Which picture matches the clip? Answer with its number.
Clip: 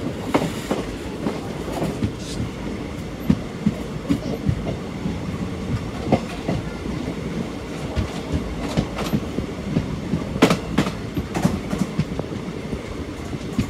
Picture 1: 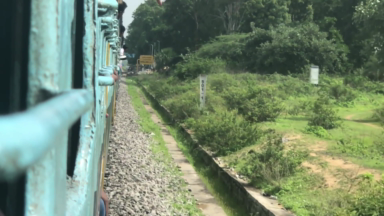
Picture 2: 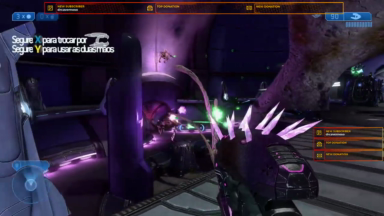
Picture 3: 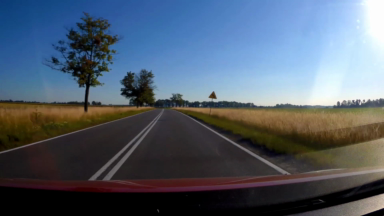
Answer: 1